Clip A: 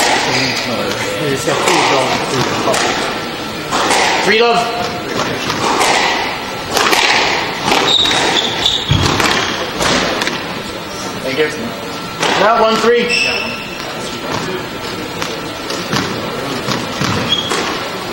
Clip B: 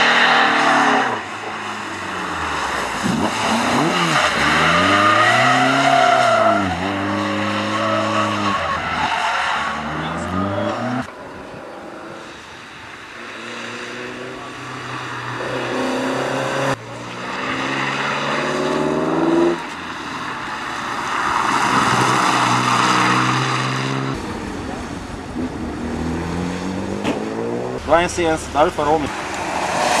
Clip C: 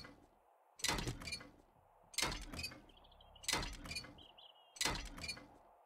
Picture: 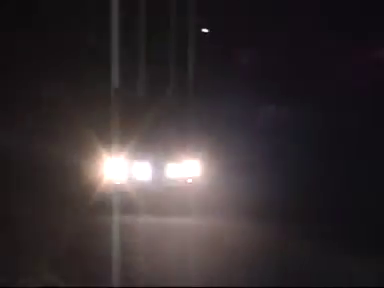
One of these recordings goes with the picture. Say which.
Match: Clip B